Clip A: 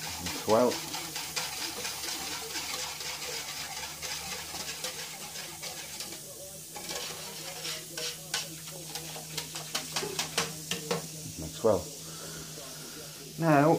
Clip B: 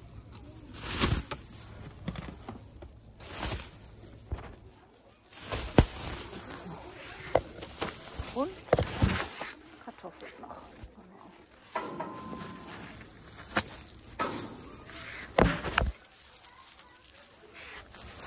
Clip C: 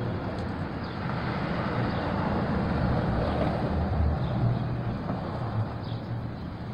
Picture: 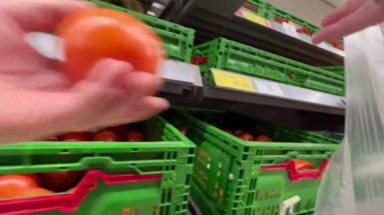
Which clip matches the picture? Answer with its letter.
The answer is B